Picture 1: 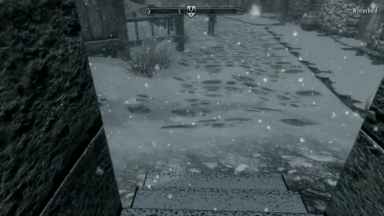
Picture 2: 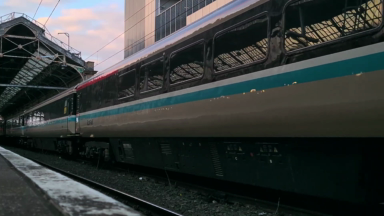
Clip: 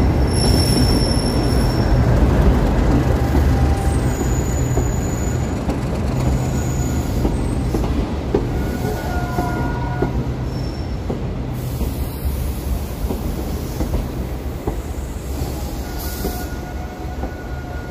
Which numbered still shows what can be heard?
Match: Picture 2